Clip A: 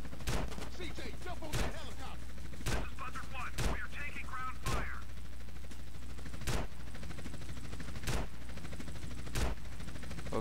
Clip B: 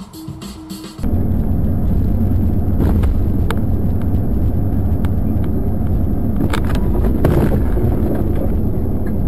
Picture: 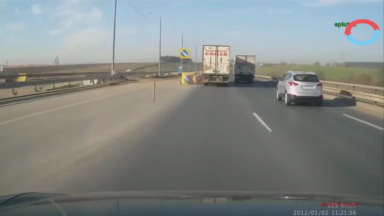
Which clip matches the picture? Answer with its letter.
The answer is B